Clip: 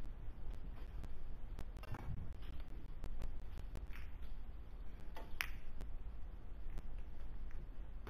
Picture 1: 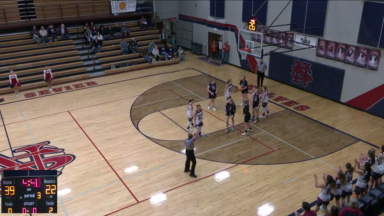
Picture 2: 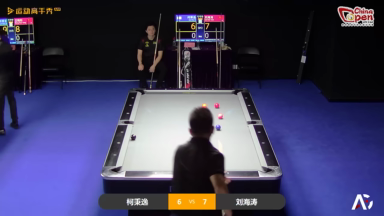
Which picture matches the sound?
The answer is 2